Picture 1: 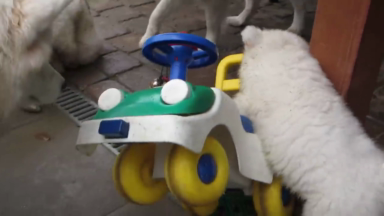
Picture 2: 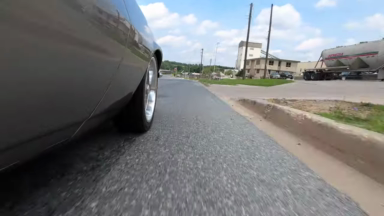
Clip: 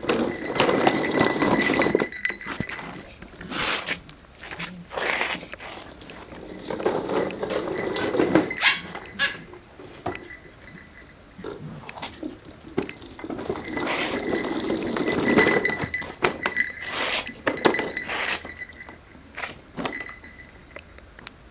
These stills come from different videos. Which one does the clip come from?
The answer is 1